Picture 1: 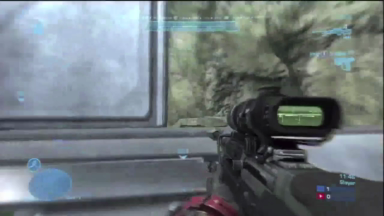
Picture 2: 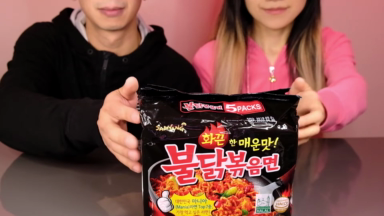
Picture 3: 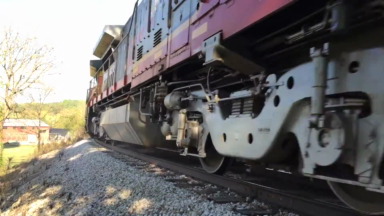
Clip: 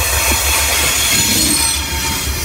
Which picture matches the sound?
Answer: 3